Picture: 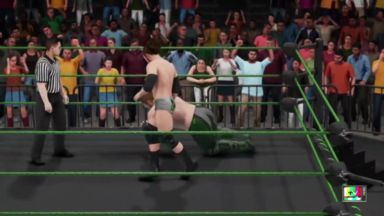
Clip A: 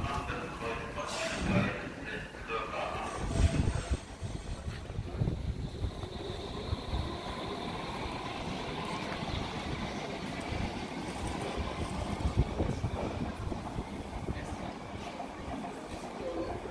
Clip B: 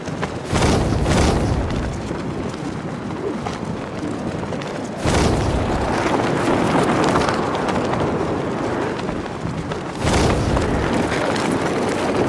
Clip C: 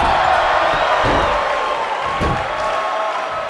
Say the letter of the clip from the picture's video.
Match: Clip C